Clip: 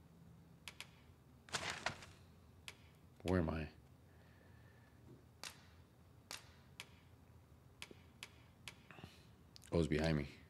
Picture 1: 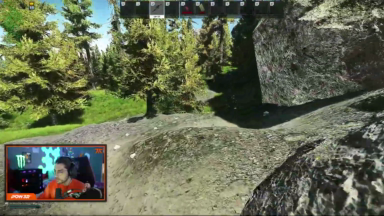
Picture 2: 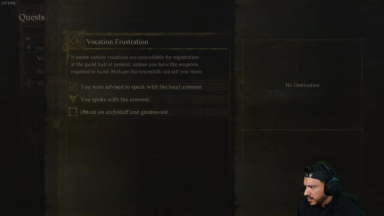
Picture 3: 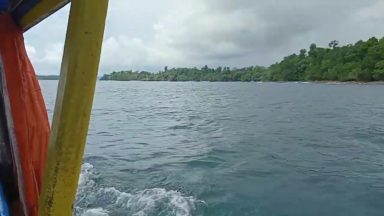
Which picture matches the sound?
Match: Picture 2